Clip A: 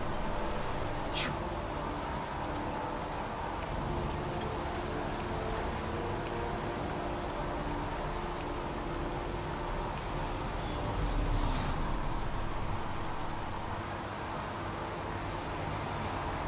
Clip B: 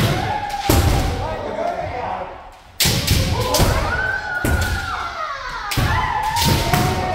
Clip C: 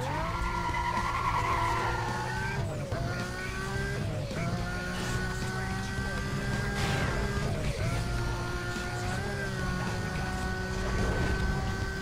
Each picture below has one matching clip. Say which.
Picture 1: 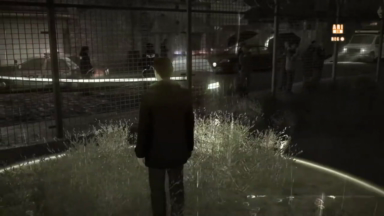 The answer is A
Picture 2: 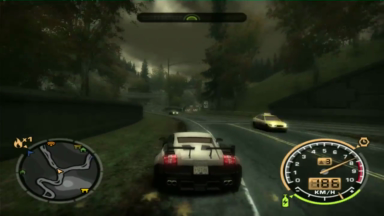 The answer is C